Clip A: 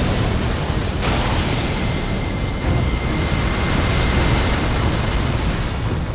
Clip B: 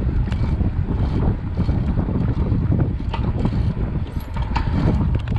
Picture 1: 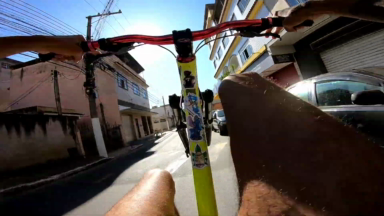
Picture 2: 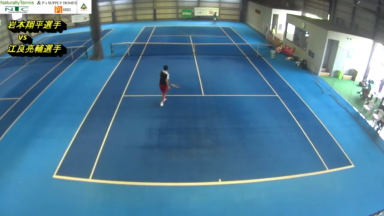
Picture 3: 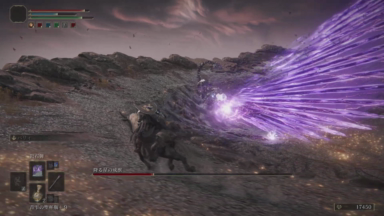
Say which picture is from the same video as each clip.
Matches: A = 3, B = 1